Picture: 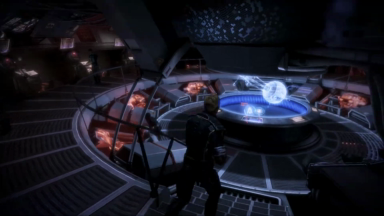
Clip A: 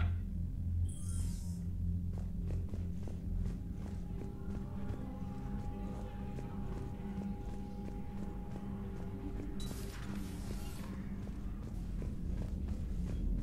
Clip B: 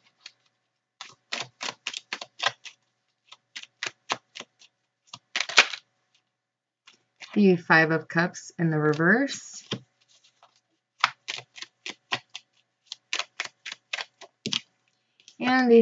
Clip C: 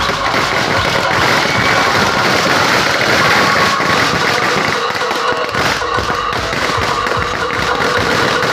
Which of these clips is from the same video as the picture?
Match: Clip A